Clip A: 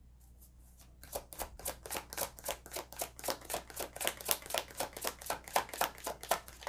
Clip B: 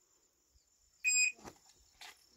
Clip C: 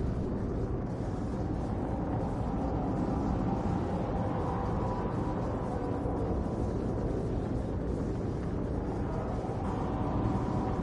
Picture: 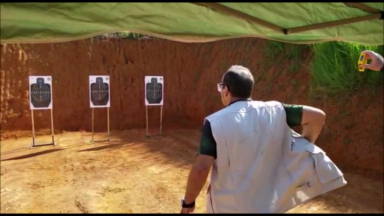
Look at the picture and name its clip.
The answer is B